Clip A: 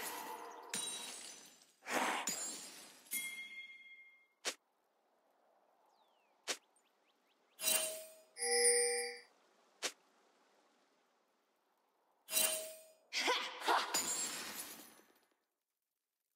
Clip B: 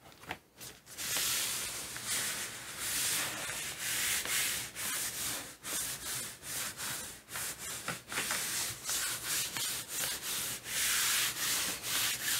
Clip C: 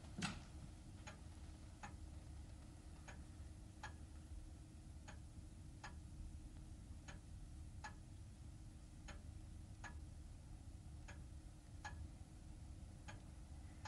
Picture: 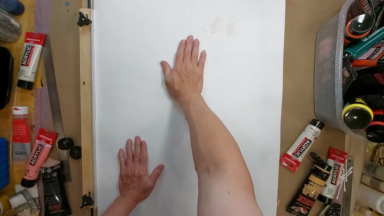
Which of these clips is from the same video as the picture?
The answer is B